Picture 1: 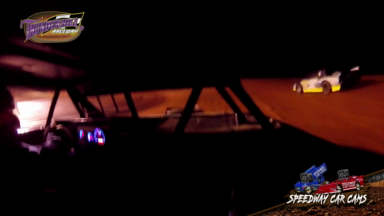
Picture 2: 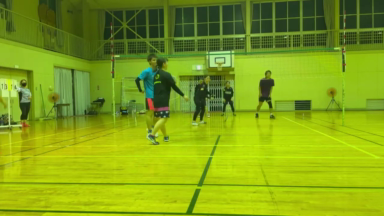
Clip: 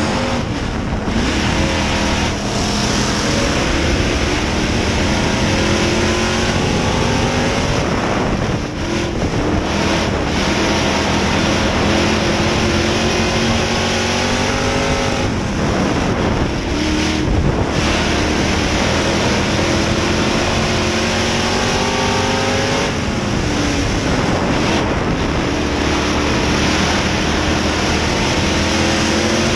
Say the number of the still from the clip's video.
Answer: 1